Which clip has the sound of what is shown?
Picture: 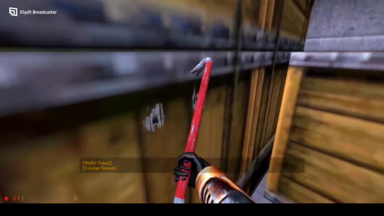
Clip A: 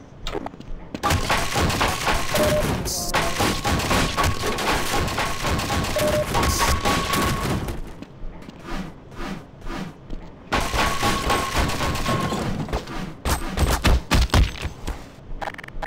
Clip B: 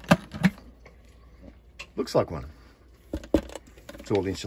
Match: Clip A